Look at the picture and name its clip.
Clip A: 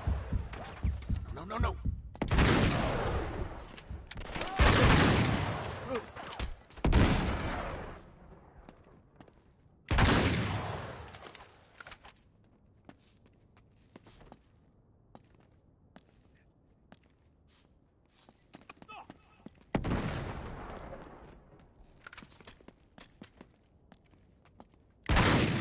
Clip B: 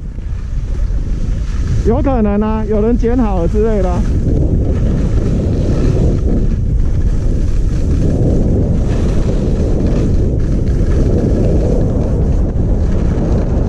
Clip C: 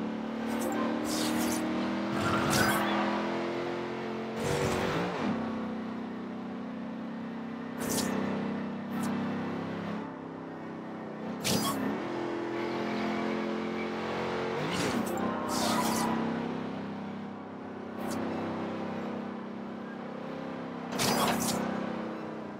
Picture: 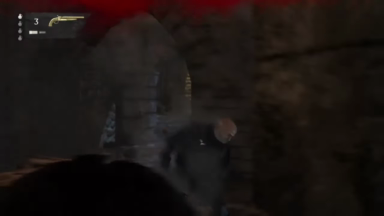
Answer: A